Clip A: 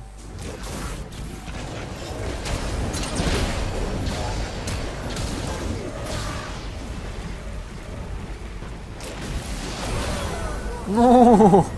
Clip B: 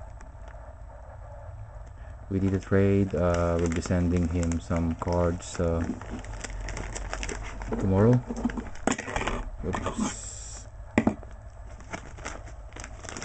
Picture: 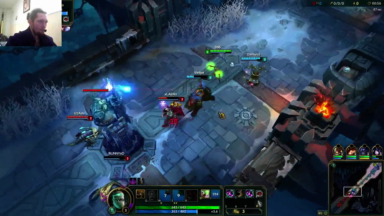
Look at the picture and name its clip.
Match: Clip A